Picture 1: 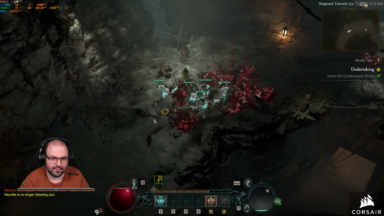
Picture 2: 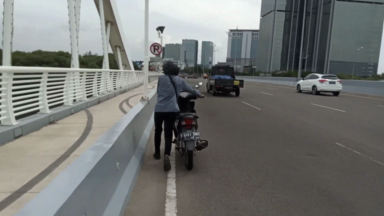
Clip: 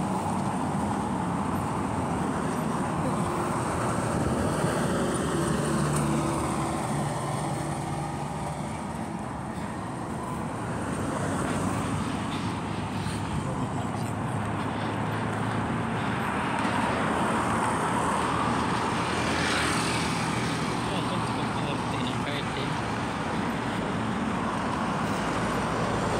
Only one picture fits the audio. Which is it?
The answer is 2